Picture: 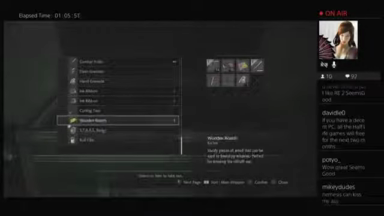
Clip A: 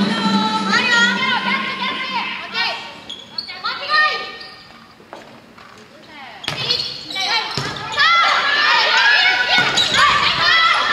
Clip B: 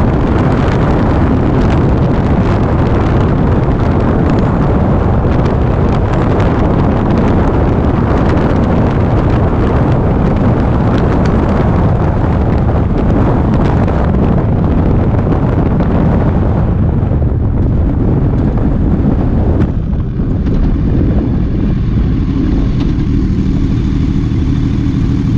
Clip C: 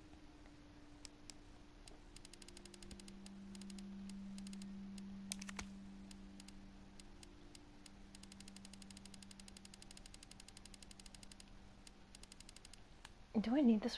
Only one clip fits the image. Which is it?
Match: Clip C